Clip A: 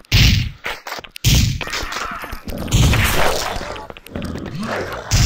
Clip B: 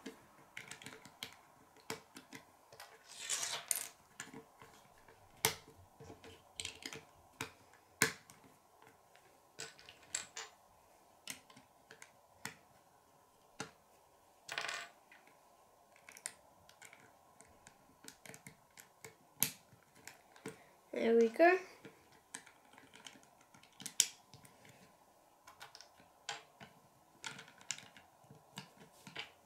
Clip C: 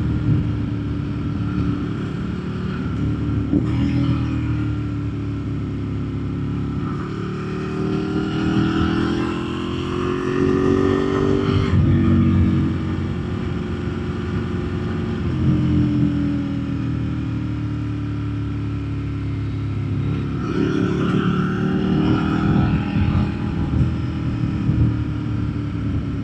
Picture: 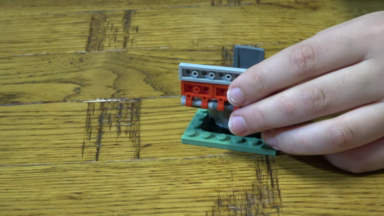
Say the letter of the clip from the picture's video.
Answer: B